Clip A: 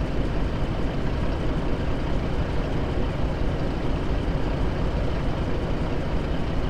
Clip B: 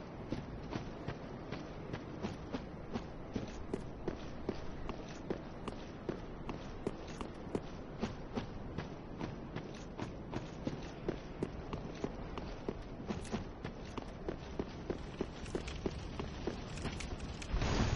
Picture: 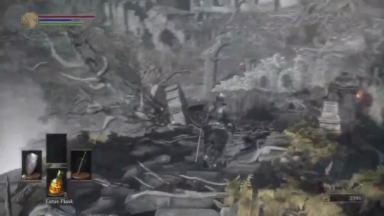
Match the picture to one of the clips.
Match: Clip B